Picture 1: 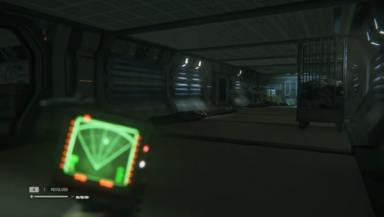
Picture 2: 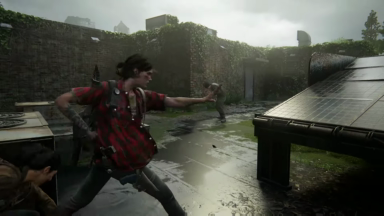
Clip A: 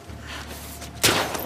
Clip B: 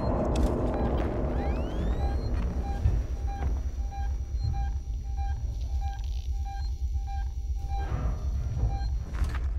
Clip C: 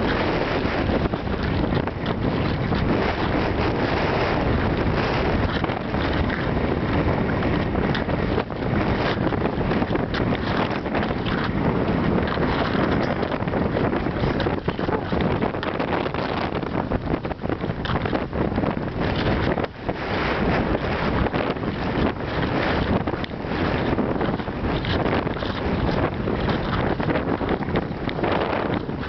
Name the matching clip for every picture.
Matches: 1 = B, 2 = A